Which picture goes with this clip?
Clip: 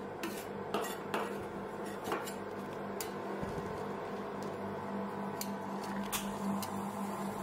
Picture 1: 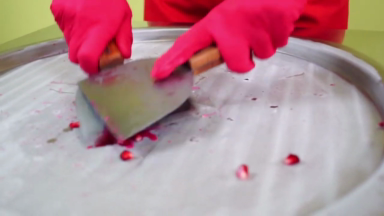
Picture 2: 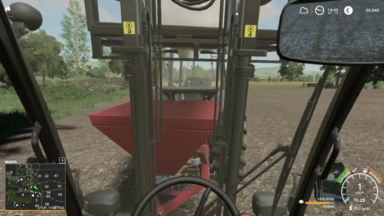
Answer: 1